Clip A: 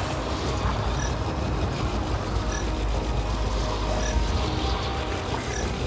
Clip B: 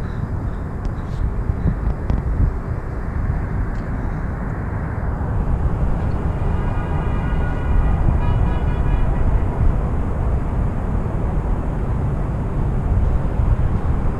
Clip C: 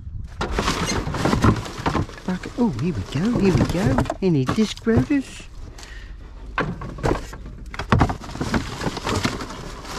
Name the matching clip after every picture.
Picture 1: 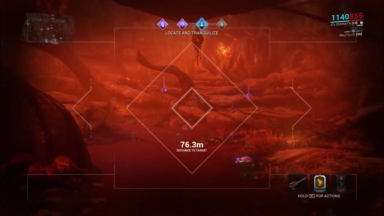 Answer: A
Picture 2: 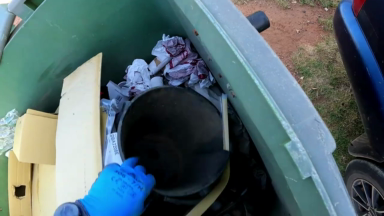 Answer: C